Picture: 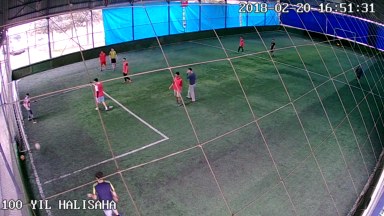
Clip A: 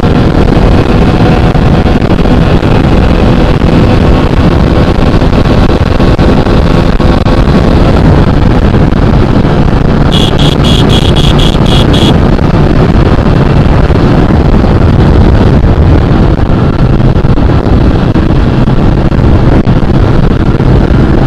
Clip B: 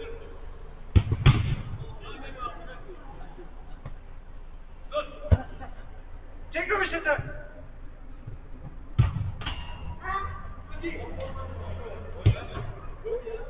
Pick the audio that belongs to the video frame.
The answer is B